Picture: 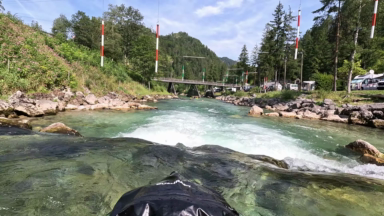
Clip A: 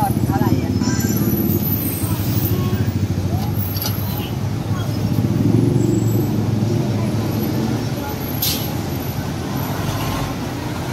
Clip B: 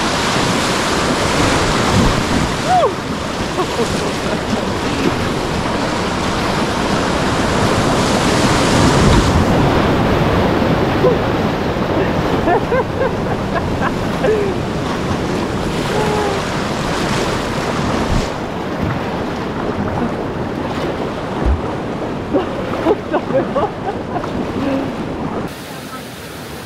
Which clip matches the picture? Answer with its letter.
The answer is B